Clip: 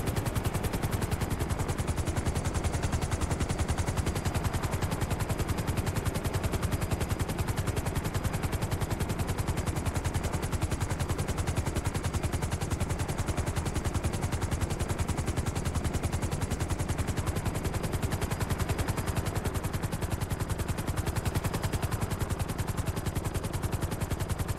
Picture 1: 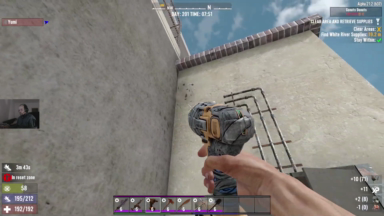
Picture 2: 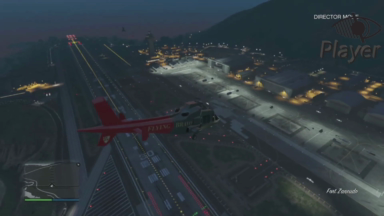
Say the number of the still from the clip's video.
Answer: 2